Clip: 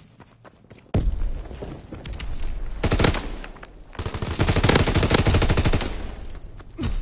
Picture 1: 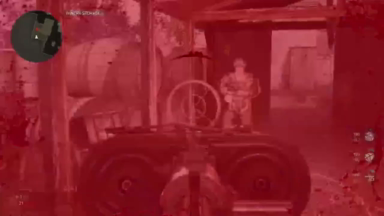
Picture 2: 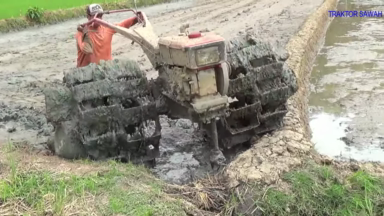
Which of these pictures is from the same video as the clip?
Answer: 1